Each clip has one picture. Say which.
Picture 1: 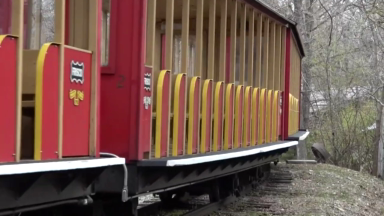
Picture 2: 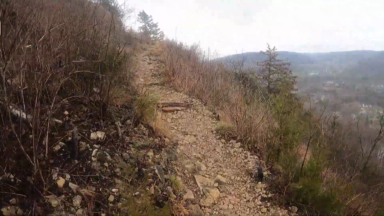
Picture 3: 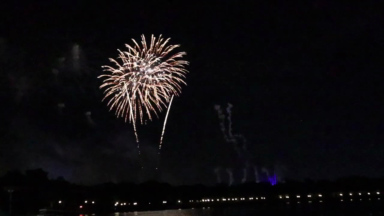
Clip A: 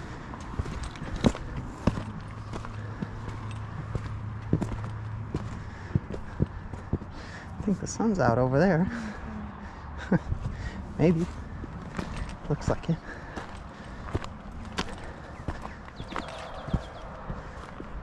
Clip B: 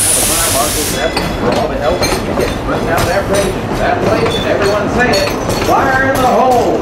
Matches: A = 2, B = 1